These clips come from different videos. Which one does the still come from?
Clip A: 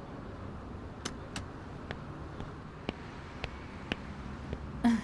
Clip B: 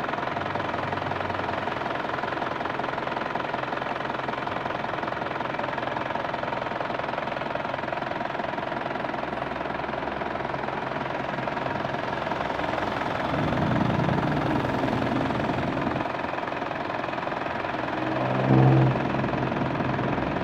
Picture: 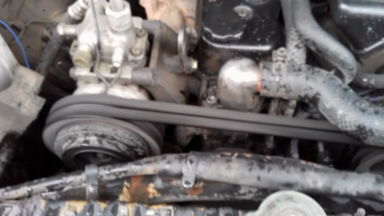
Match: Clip B